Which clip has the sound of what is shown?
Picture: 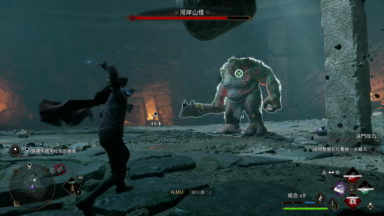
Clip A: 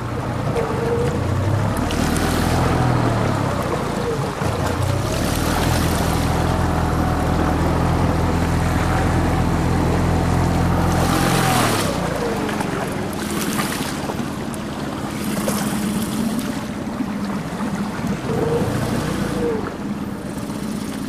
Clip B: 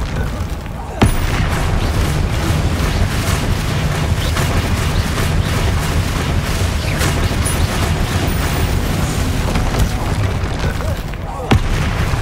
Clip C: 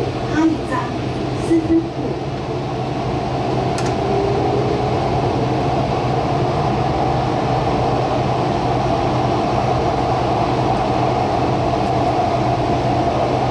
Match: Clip B